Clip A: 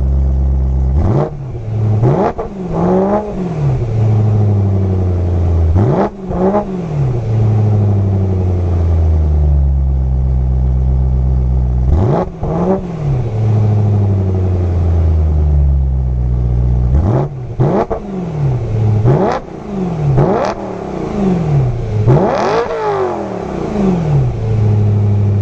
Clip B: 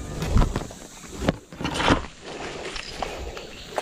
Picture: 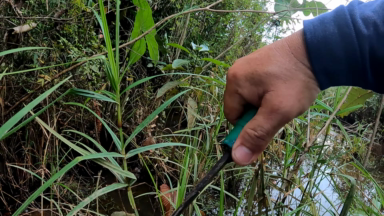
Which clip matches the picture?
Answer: B